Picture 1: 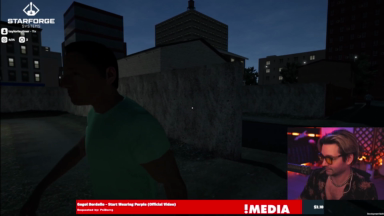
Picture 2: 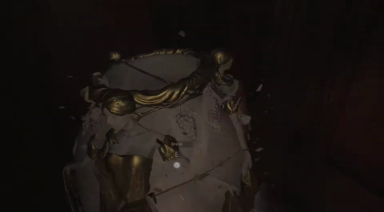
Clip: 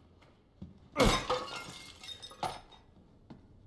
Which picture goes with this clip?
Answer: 2